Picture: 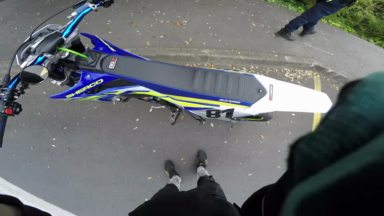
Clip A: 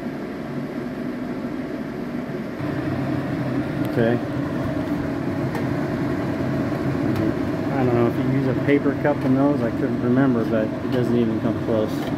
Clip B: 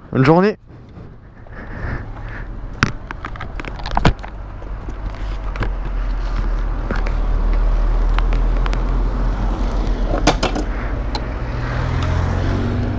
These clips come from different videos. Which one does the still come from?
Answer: B